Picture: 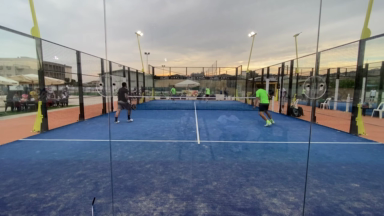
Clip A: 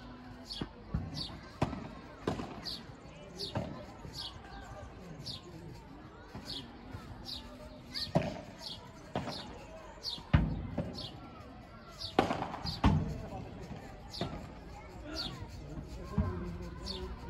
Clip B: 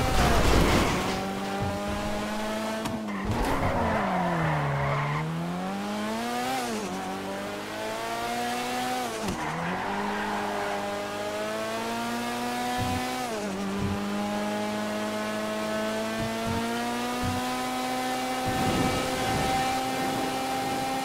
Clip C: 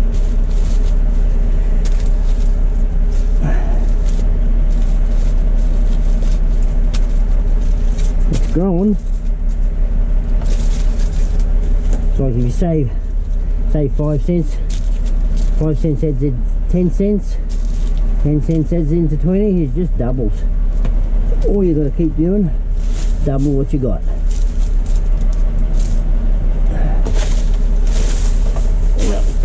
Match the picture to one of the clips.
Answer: A